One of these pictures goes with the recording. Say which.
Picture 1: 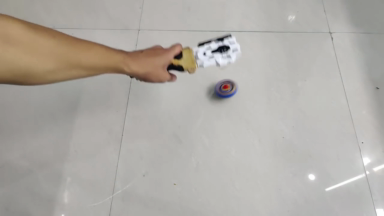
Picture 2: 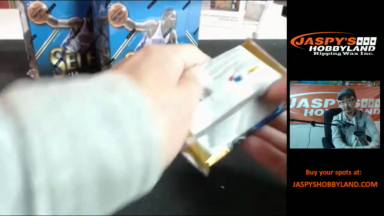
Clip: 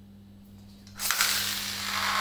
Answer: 1